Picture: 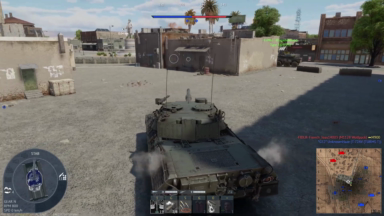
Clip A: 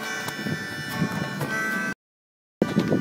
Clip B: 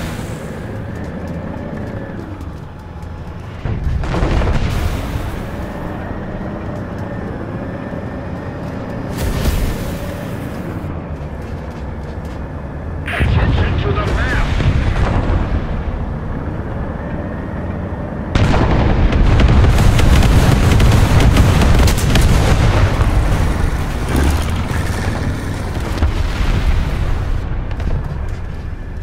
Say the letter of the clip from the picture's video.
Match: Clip B